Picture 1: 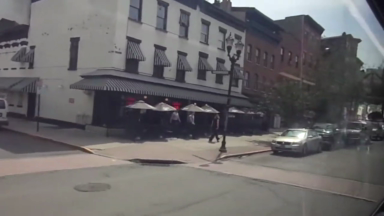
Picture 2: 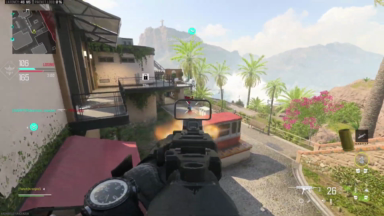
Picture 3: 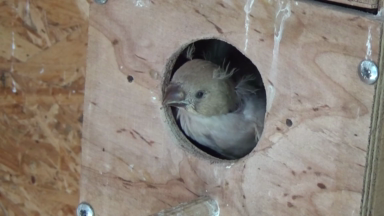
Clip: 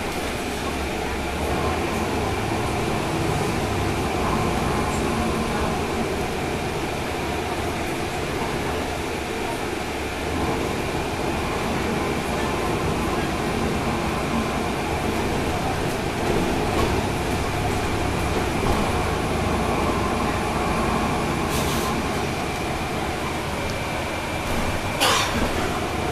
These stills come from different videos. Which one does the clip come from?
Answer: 1